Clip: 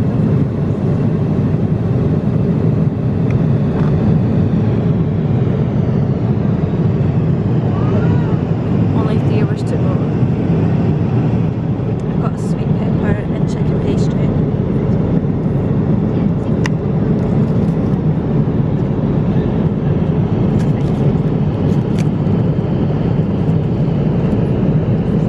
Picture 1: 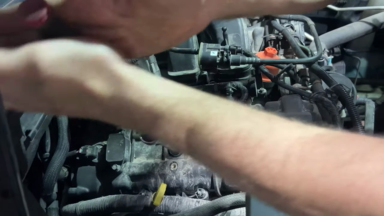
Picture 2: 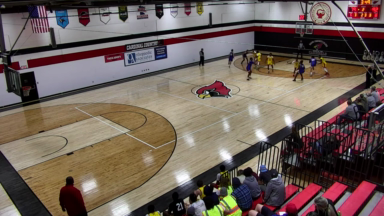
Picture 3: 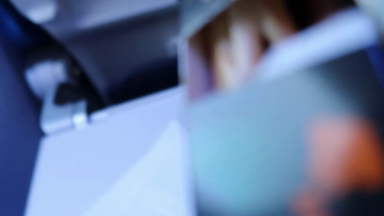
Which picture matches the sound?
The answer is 3